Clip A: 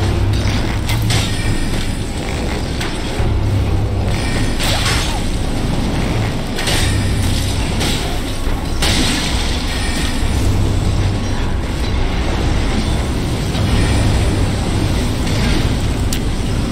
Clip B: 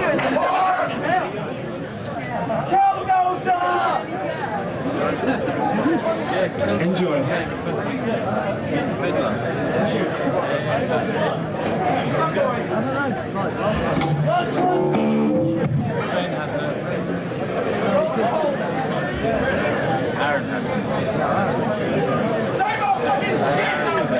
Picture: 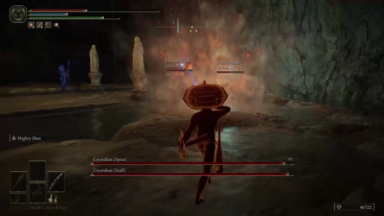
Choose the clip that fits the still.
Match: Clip A